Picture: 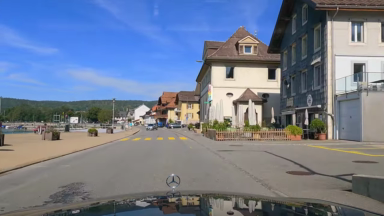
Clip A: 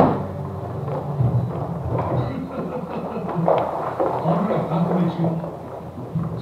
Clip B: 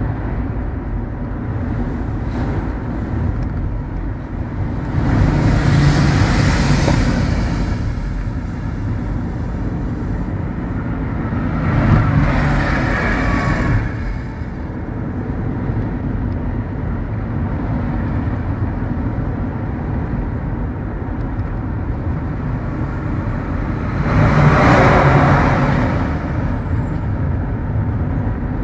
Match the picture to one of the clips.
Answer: B